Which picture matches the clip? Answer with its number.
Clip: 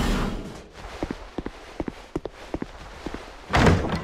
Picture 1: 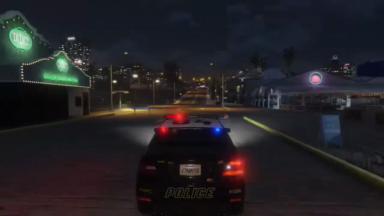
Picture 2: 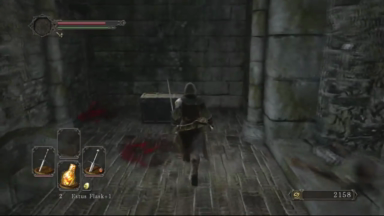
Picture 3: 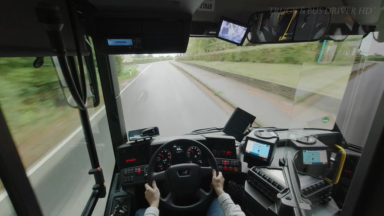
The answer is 2